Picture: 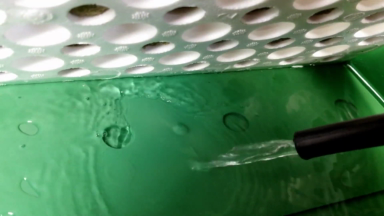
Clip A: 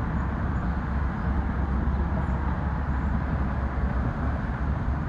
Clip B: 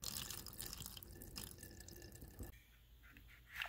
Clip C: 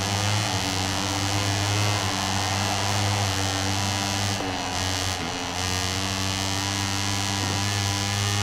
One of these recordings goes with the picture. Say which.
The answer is B